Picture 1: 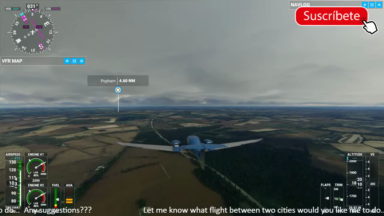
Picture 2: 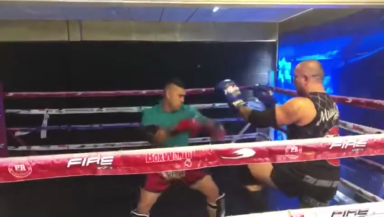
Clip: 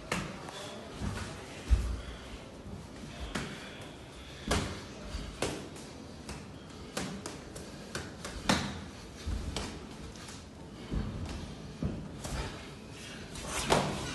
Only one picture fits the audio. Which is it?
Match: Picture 2